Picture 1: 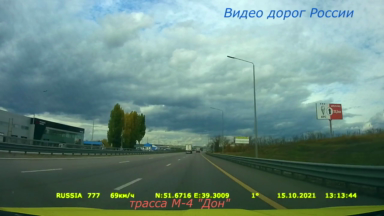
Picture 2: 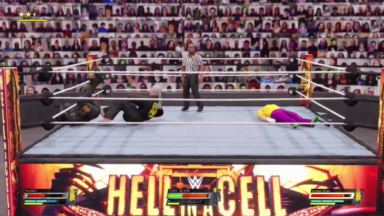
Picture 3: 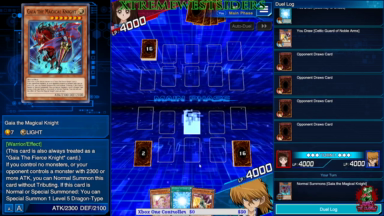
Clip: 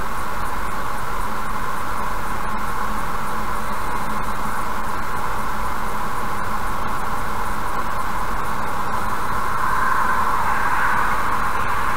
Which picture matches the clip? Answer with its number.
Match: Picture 1